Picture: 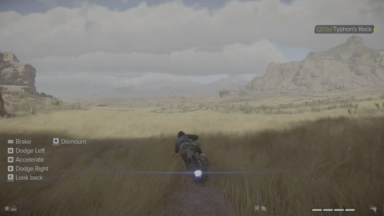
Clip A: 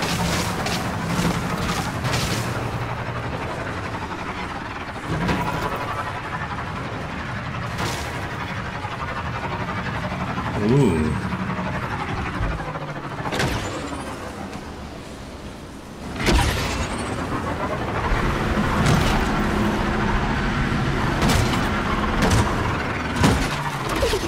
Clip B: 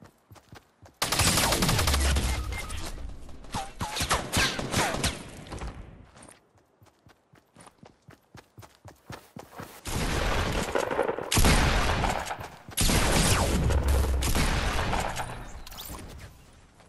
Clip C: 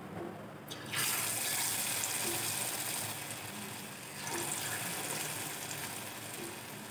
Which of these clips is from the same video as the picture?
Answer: A